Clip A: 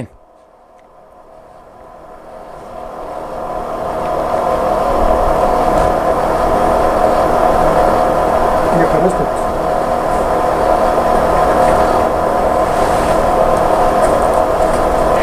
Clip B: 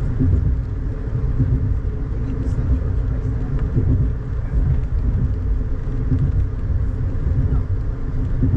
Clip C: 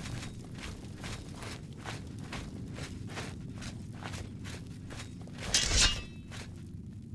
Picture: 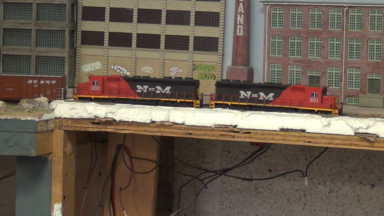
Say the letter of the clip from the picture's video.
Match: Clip A